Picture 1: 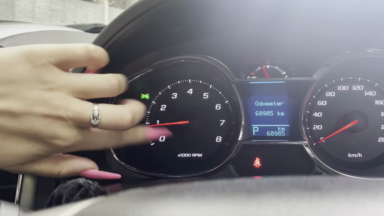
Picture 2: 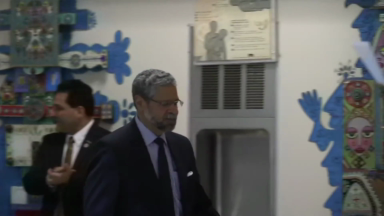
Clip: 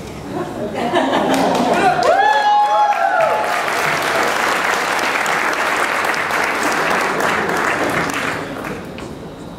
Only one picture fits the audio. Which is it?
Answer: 2